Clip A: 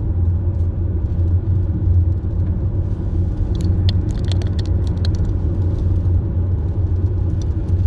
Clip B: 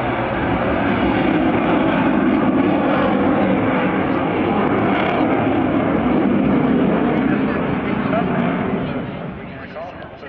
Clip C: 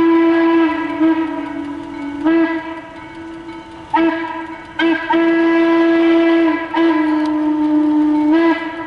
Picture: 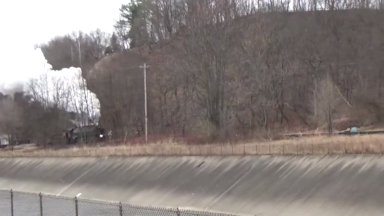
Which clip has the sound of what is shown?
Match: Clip C